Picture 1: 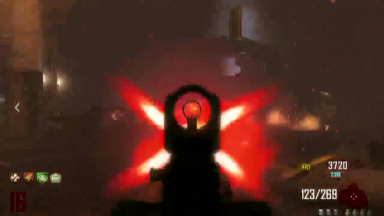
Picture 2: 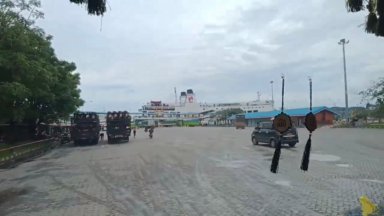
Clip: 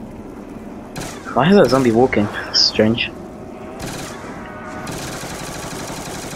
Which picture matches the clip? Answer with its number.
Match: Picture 1